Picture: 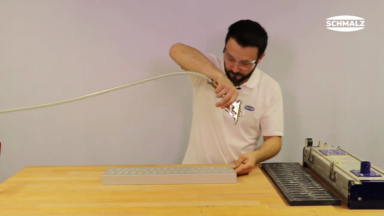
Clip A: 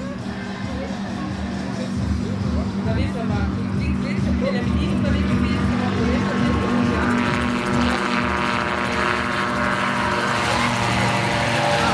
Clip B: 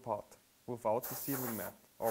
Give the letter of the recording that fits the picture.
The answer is B